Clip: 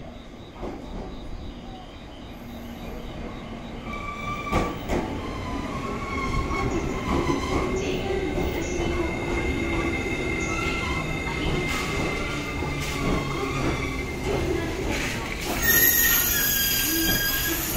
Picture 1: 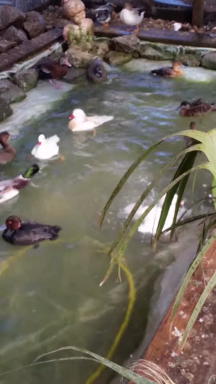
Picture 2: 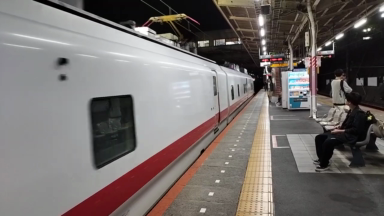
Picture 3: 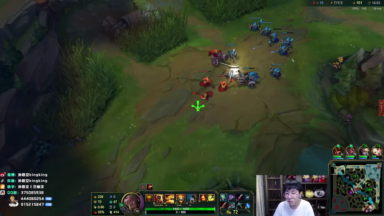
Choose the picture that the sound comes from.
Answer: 2